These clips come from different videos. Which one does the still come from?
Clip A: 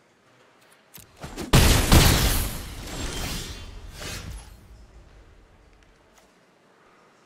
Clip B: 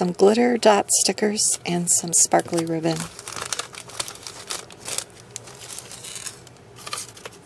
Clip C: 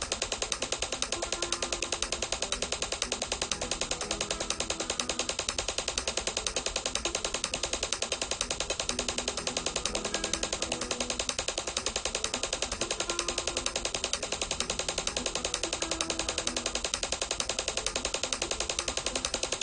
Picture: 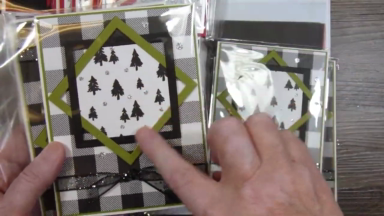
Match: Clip B